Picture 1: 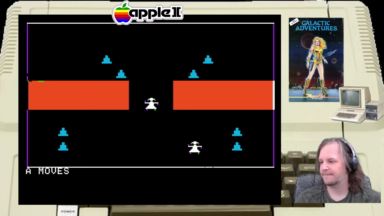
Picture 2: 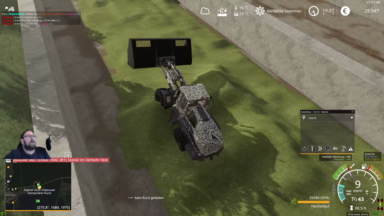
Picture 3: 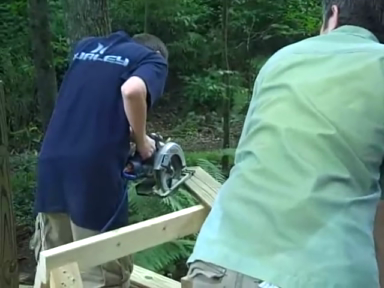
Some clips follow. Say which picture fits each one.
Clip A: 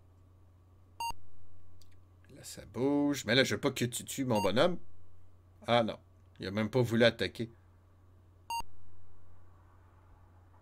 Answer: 1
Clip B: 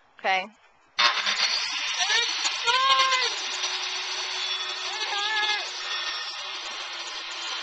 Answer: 3